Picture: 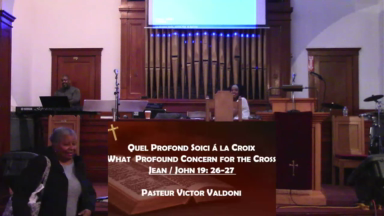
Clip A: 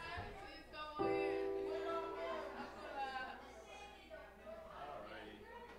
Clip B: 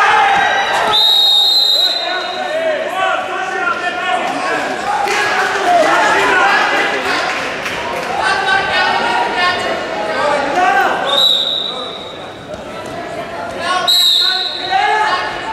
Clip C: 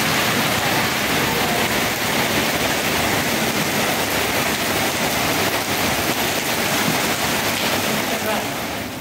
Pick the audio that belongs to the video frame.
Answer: A